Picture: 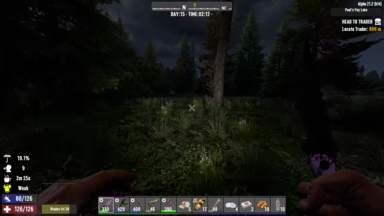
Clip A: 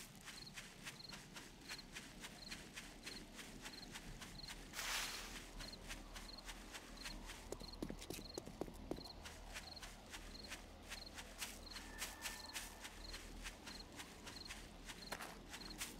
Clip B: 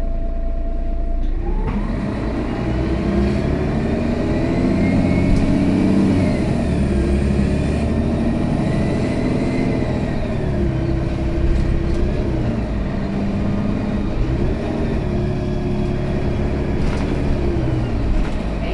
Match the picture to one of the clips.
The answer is A